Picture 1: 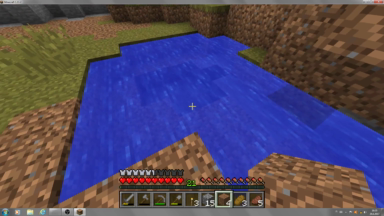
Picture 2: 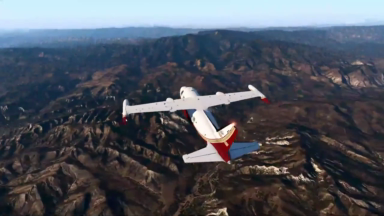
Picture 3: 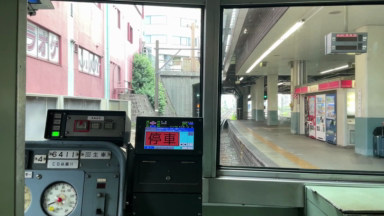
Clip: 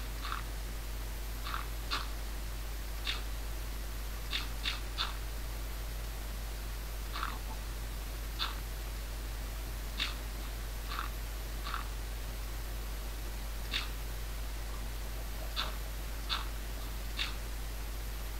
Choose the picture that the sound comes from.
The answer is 1